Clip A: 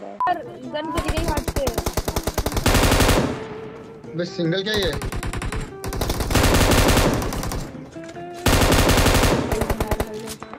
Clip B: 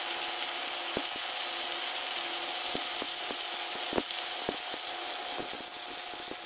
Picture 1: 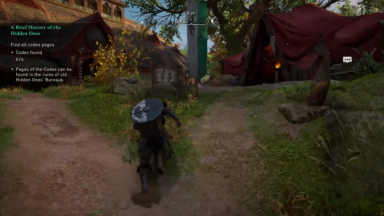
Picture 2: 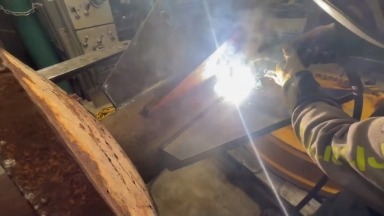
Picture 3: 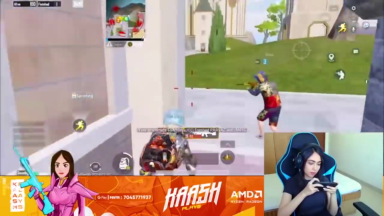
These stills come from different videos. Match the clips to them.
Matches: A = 3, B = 2